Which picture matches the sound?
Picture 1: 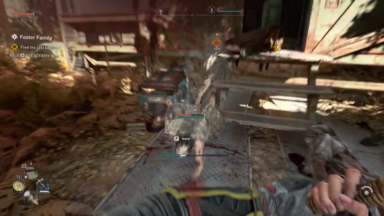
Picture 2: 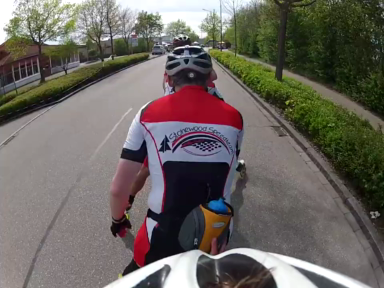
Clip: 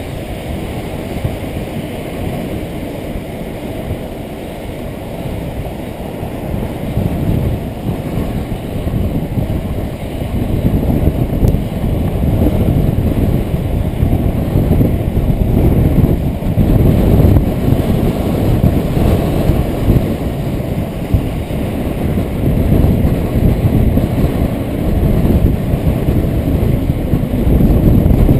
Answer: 2